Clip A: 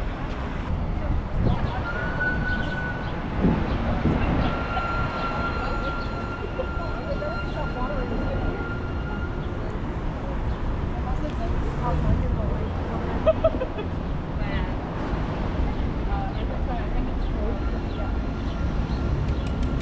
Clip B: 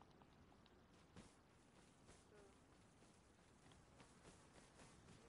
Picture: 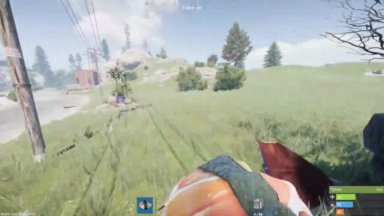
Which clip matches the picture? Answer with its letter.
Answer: B